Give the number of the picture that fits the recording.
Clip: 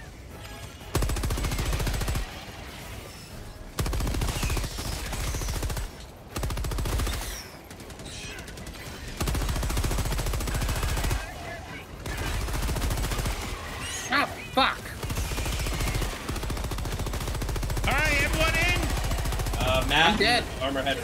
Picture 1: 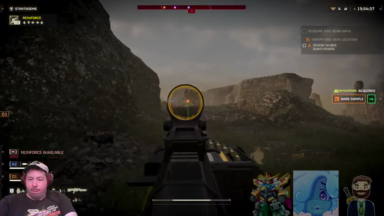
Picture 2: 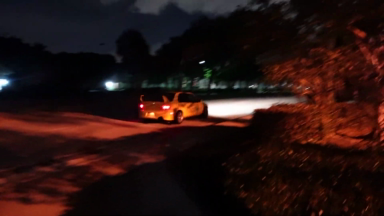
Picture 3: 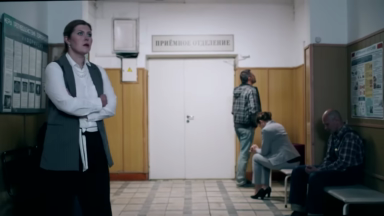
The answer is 1